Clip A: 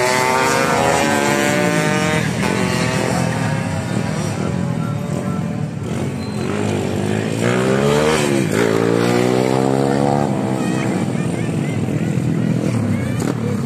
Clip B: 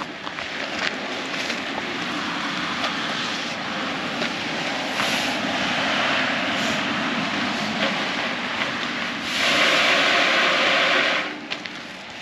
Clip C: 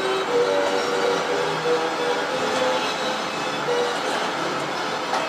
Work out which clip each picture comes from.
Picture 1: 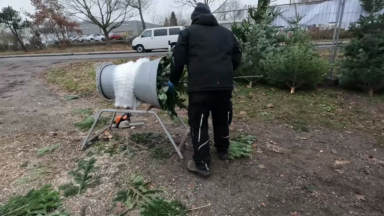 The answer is B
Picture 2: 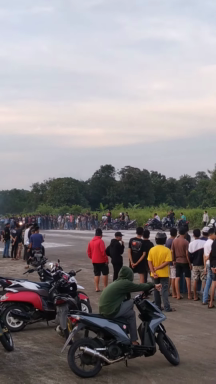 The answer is A